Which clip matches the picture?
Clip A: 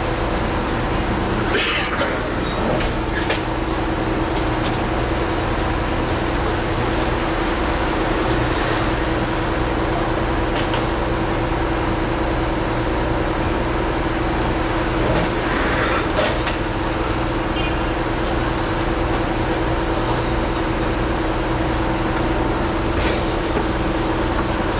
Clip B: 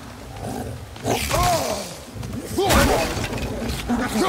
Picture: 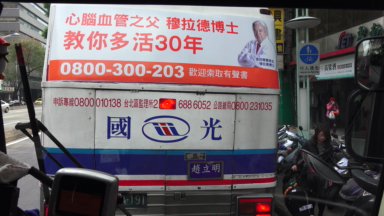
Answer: A